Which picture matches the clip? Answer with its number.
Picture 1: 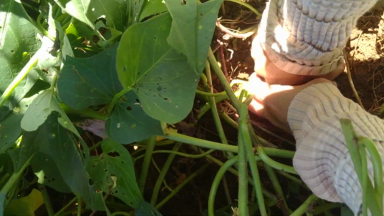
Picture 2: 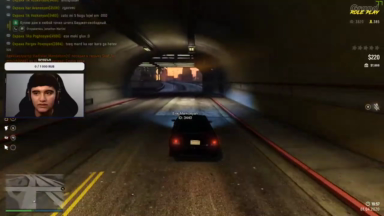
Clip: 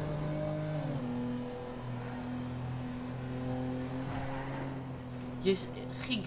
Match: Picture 2